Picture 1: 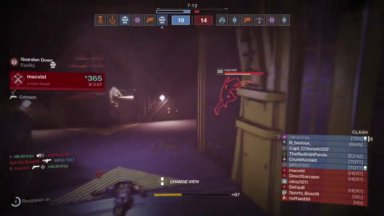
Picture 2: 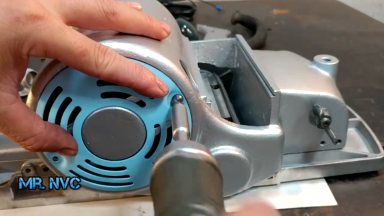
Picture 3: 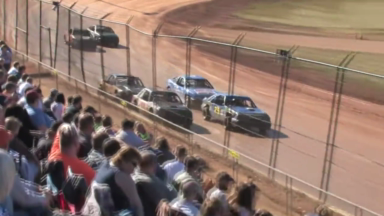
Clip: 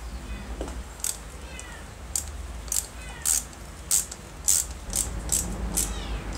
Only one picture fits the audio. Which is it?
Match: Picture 2